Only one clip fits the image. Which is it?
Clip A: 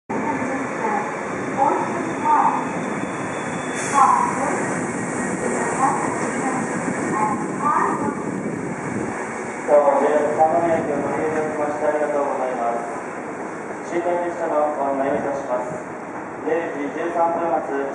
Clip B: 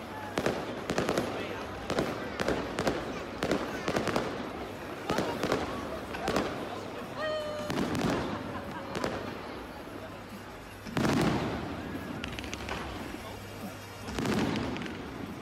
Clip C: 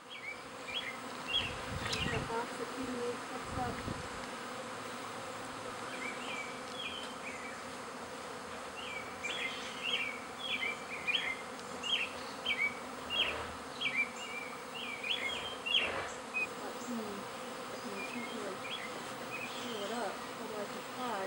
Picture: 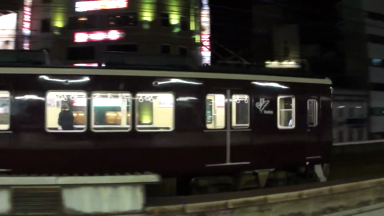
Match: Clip A